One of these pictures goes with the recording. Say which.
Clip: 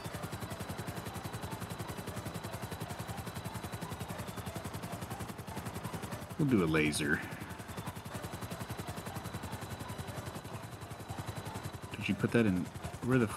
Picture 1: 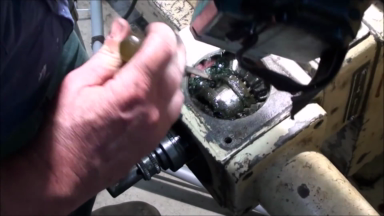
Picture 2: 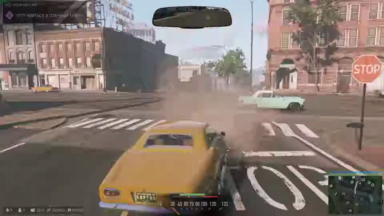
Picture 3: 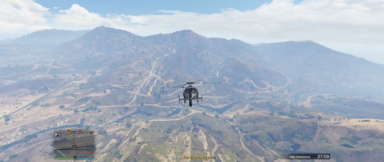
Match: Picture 3